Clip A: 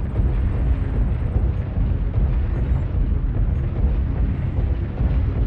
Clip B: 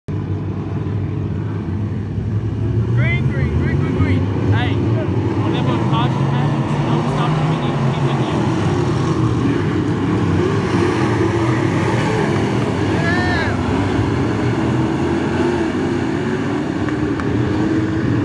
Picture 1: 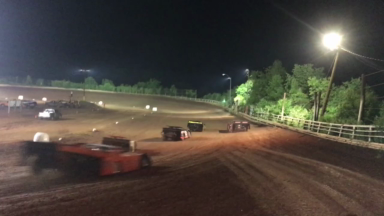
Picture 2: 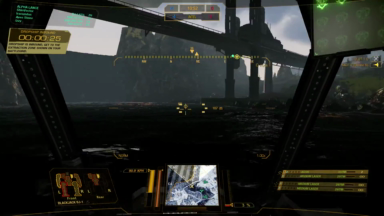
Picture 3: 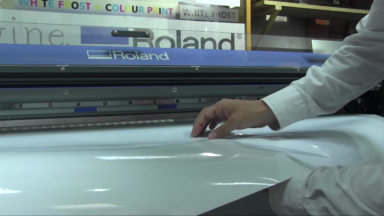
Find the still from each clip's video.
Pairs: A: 2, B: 1